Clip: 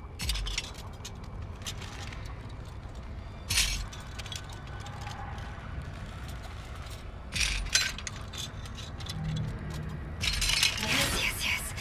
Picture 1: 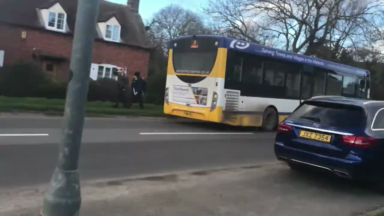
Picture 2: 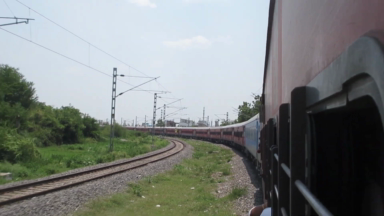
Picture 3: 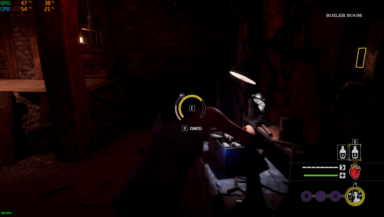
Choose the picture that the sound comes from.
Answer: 3